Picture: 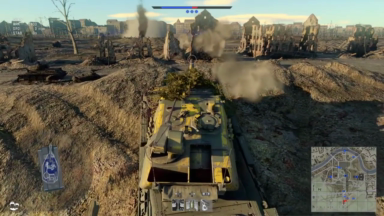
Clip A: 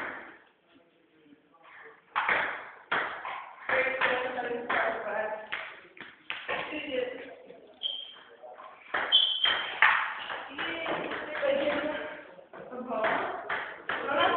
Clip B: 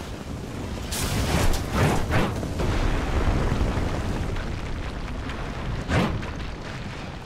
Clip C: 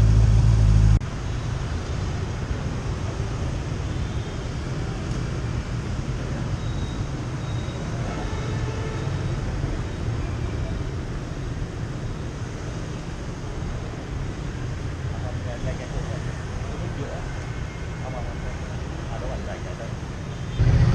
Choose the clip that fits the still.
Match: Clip B